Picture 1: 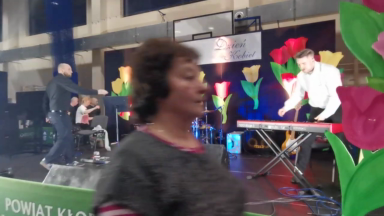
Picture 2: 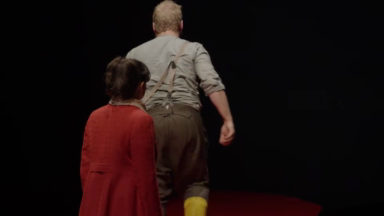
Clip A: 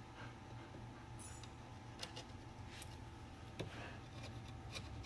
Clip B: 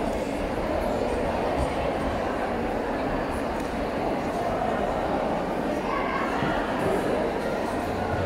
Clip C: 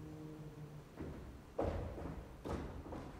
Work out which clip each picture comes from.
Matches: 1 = B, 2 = C